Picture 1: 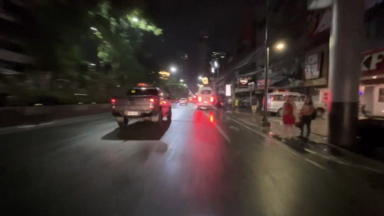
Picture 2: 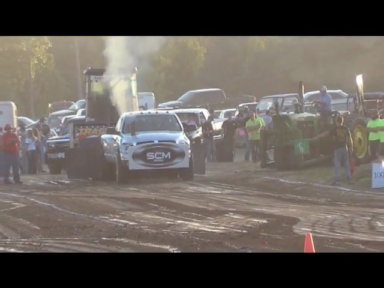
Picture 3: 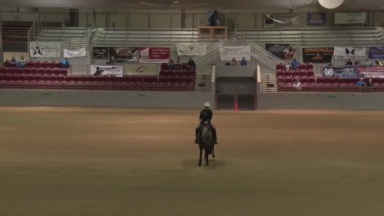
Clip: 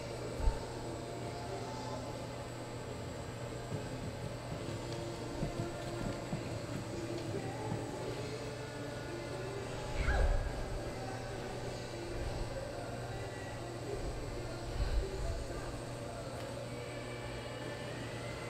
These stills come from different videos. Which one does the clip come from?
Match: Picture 3